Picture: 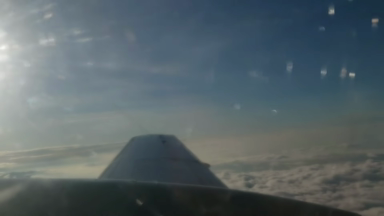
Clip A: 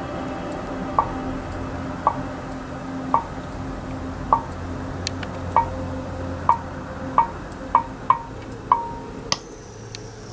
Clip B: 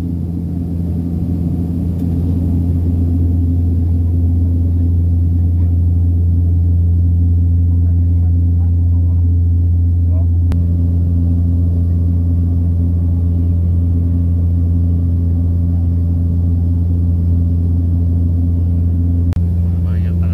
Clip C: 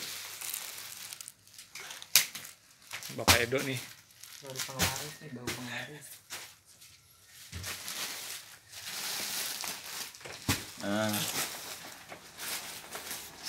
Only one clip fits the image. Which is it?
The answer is B